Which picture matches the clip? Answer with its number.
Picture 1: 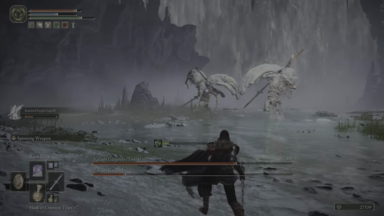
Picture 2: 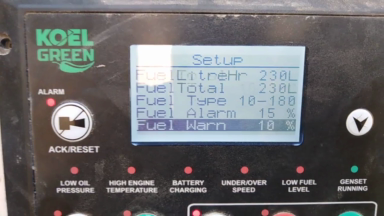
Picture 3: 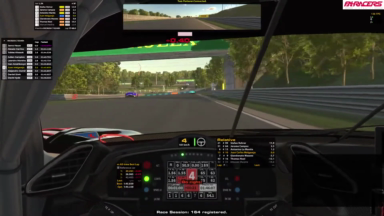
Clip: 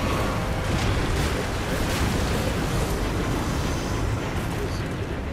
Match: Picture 1